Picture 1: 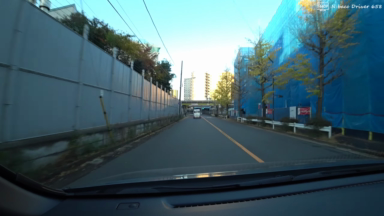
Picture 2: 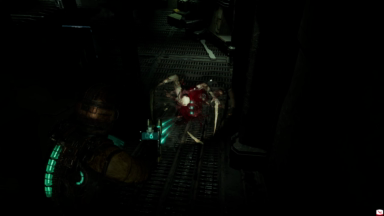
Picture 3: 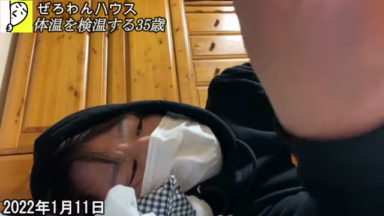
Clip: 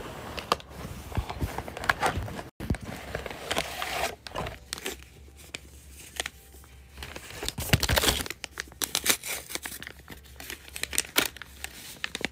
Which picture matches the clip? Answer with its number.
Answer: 3